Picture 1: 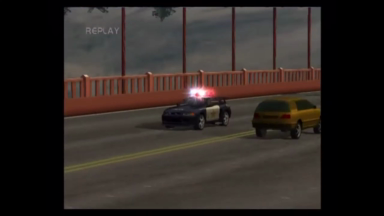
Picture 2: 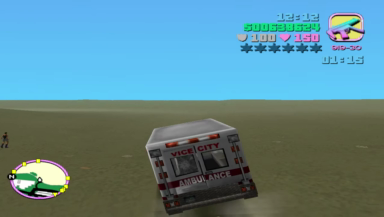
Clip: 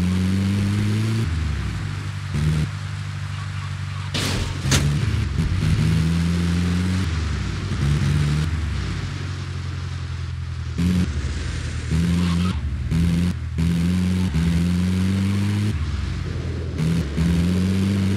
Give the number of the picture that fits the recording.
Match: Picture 2